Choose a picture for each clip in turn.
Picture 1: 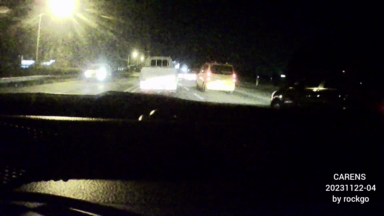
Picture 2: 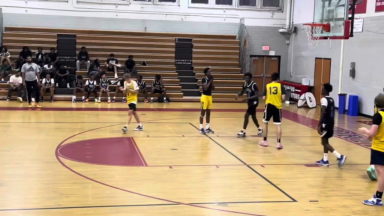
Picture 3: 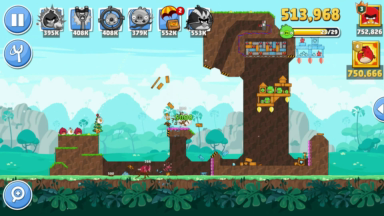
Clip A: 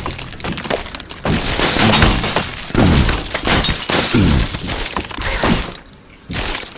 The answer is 3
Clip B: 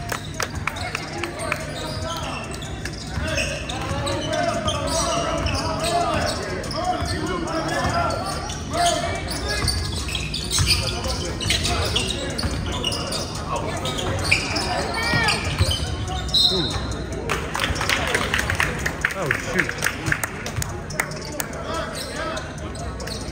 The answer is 2